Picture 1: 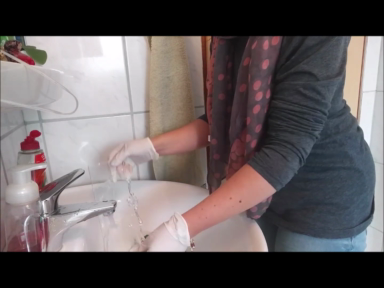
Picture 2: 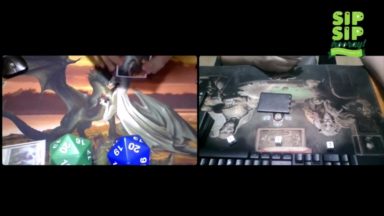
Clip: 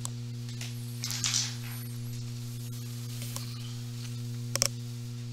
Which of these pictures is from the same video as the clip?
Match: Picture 2